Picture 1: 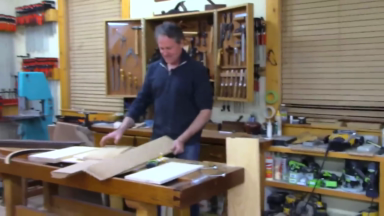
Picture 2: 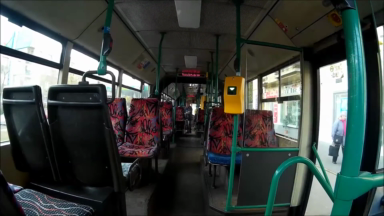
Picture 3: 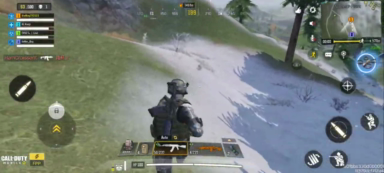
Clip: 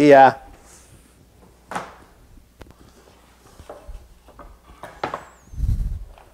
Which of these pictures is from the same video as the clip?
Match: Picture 1